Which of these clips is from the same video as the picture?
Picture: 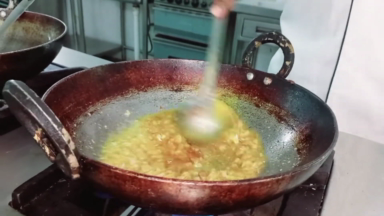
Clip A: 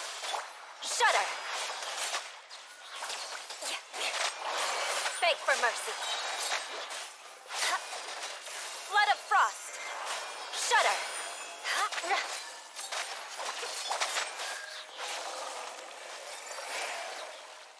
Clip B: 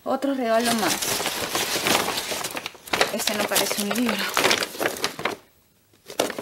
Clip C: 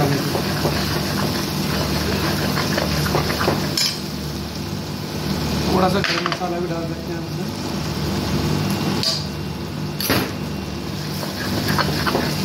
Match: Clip C